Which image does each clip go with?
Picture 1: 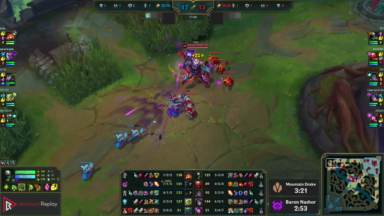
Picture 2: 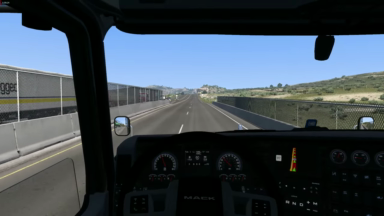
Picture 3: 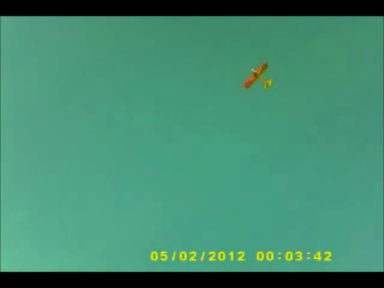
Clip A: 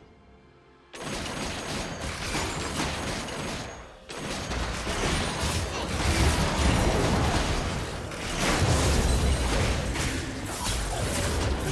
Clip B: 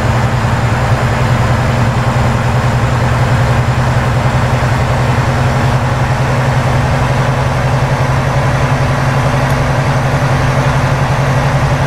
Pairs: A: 1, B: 2